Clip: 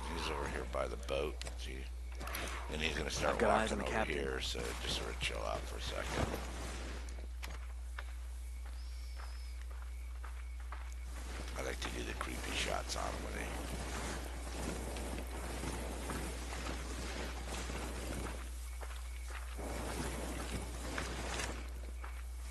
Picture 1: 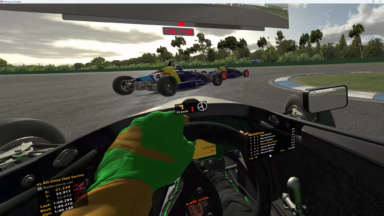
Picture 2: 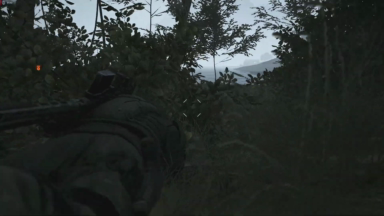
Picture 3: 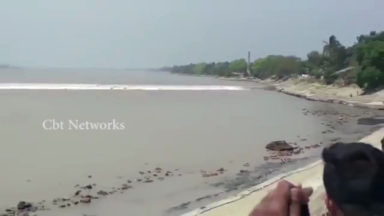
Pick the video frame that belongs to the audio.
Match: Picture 2